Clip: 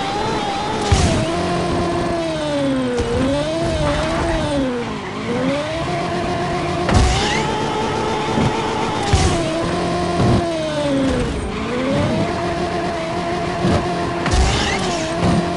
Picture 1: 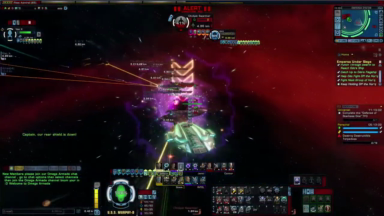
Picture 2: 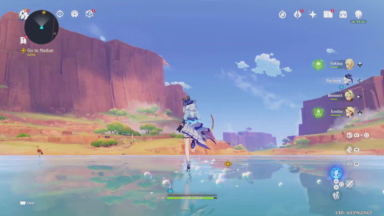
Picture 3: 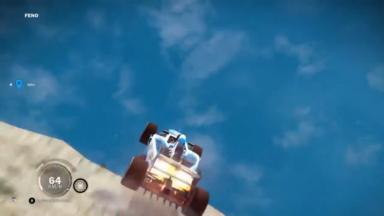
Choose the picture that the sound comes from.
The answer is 3